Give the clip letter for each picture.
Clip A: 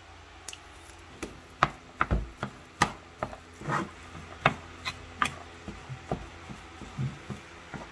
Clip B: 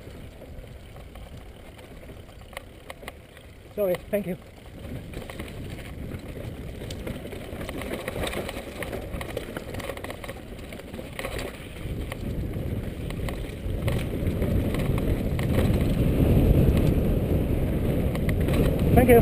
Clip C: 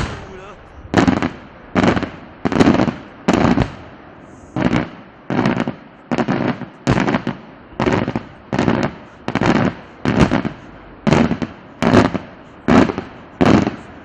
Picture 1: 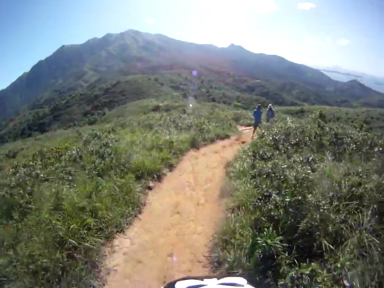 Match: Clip B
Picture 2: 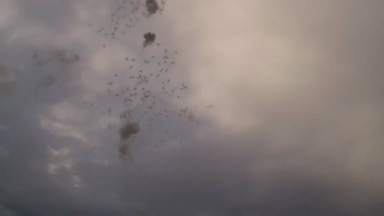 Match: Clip C